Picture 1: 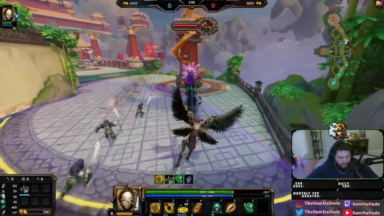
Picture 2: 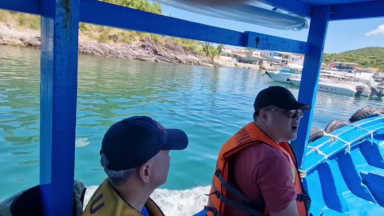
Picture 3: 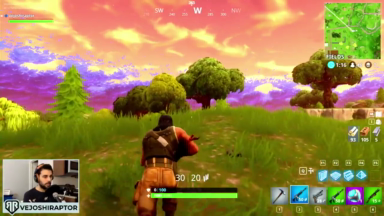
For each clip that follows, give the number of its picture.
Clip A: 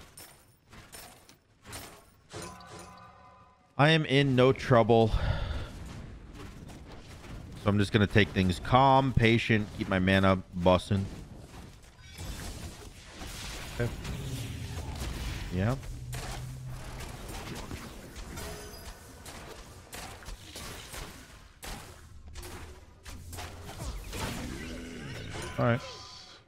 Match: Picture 1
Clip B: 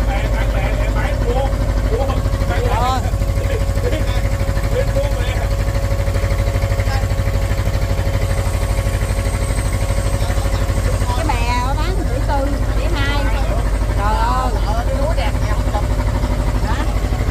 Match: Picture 2